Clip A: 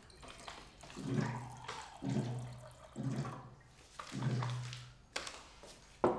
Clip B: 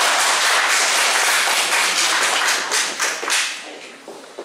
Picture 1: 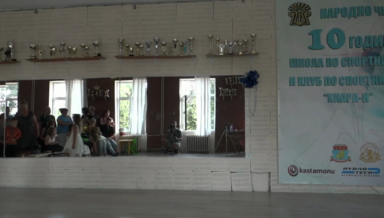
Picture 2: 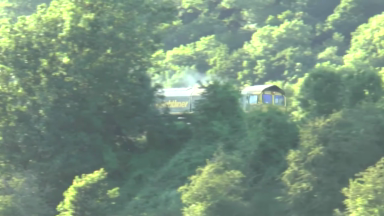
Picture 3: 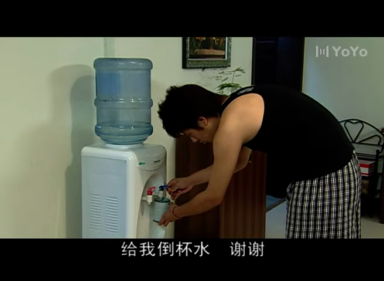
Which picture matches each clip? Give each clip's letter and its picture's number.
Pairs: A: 3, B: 1